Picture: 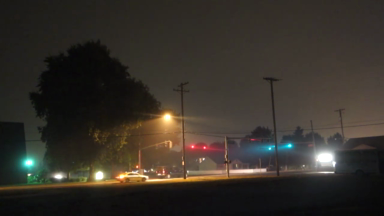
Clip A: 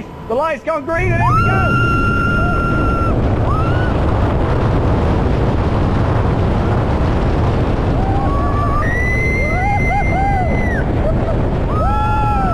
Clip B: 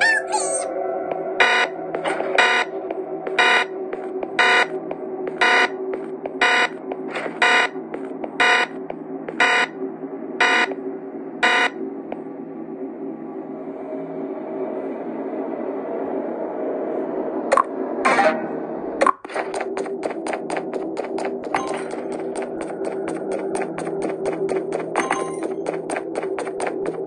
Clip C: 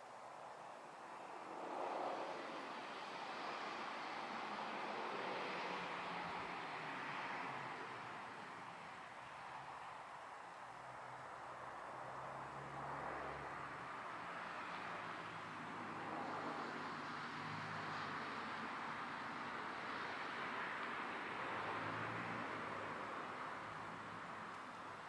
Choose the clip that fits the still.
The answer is C